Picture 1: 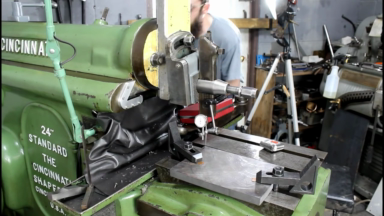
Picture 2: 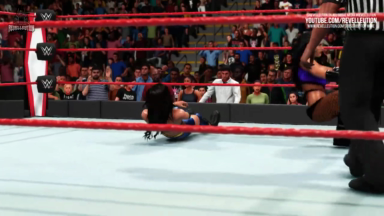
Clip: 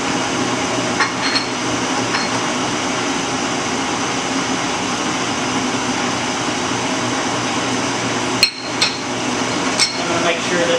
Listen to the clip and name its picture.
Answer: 1